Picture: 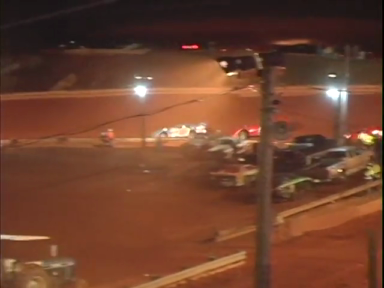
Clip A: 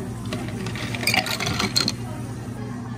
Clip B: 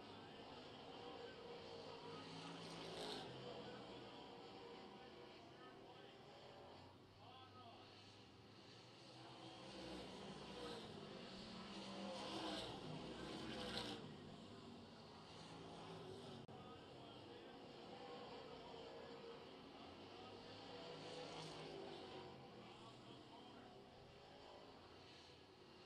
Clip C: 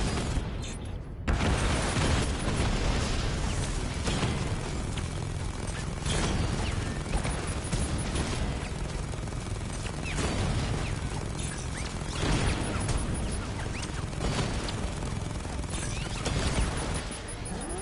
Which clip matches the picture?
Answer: B